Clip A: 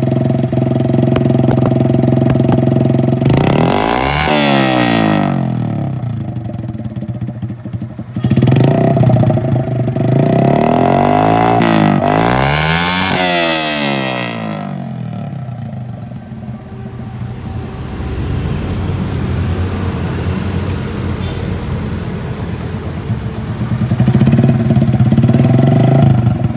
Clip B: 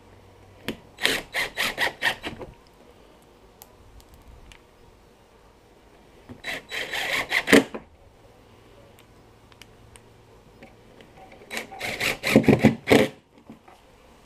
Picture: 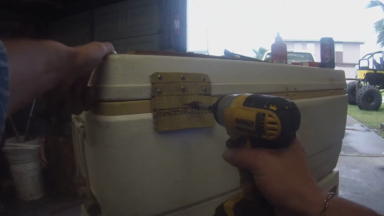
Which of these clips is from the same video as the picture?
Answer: B